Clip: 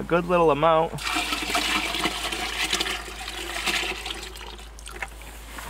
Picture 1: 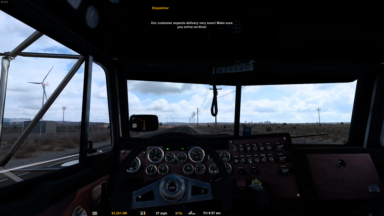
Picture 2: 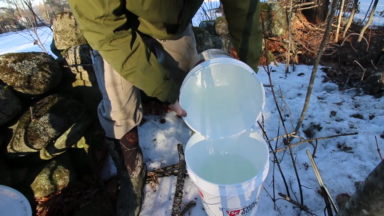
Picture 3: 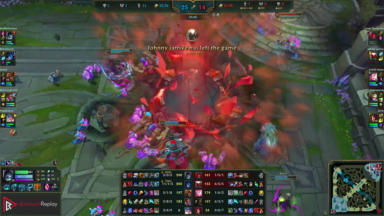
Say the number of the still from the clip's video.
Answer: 2